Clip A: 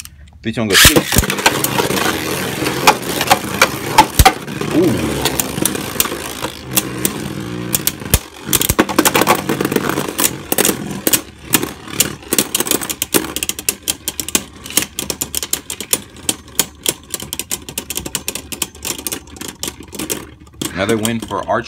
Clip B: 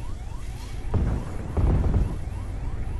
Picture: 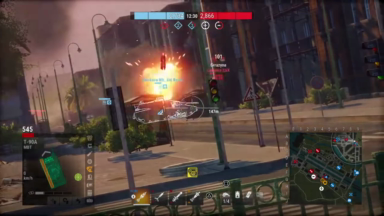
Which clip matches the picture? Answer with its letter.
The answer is B